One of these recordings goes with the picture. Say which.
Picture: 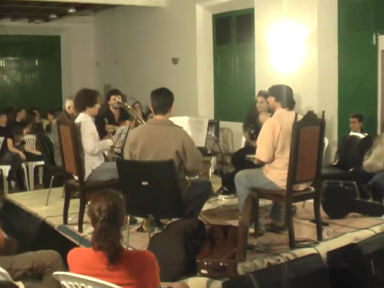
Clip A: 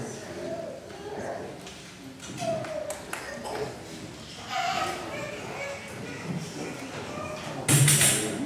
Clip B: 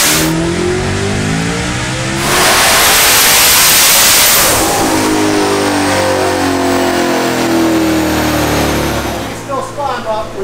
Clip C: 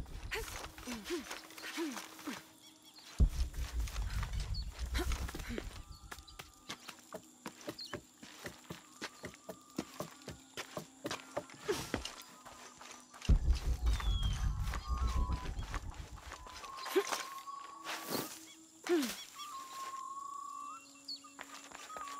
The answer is A